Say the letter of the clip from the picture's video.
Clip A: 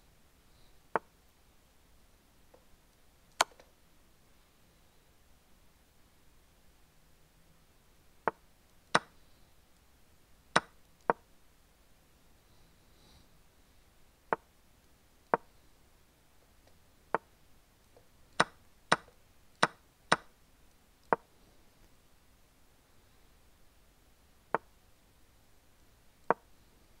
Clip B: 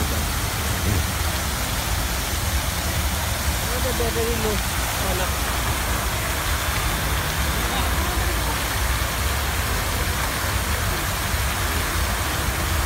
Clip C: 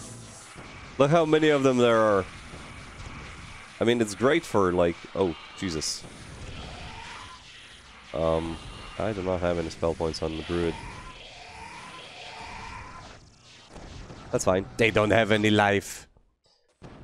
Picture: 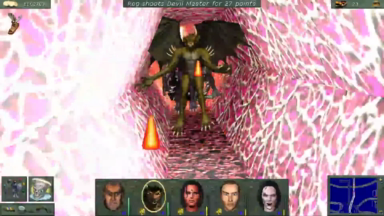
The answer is C